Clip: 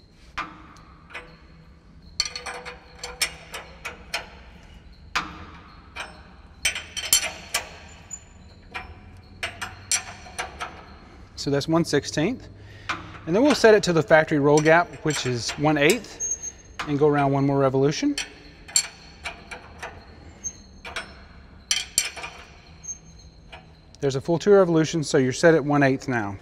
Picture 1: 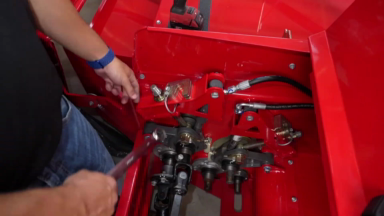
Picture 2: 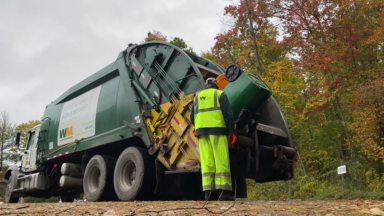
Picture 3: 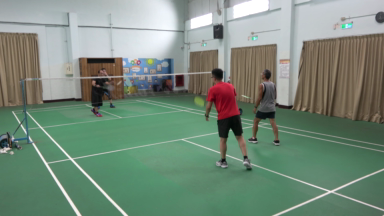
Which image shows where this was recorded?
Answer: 1